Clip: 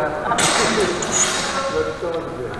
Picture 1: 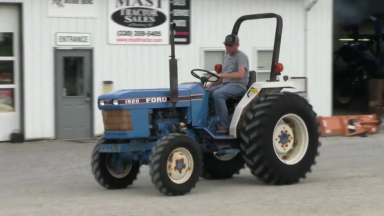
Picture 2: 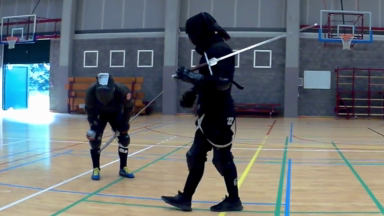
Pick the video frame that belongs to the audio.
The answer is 2